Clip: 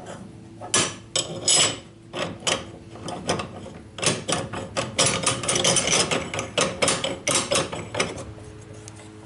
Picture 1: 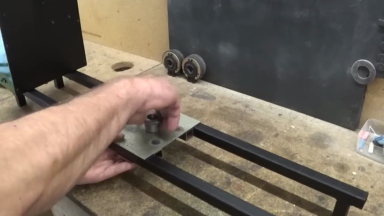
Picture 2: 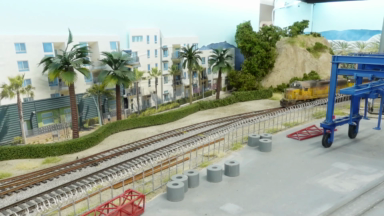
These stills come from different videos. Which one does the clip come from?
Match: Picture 1